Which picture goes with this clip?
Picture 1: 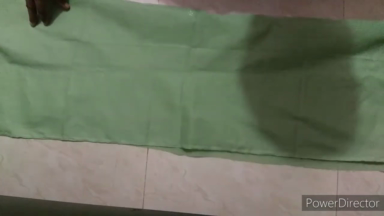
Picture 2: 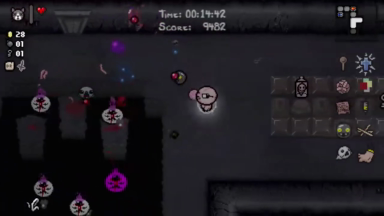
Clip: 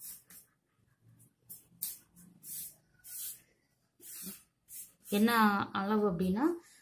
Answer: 1